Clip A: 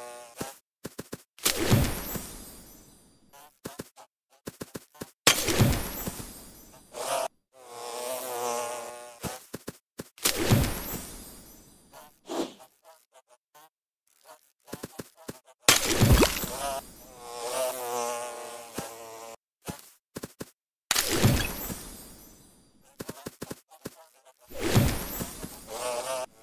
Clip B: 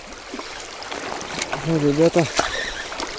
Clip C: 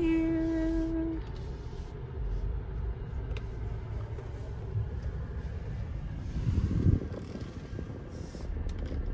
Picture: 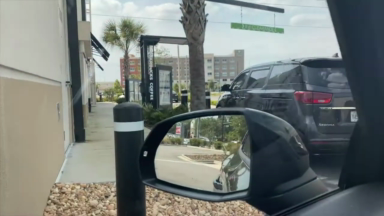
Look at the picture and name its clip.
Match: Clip C